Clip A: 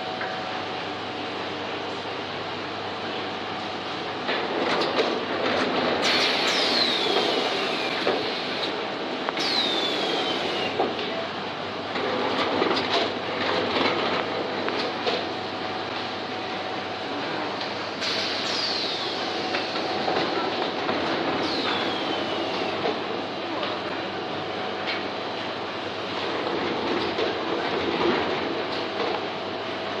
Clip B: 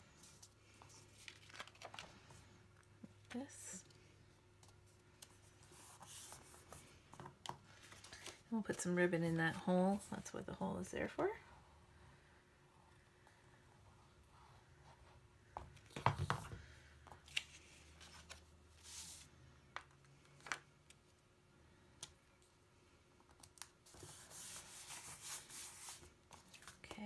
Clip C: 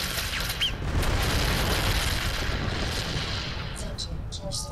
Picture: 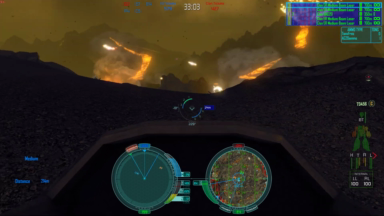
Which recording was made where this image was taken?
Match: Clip C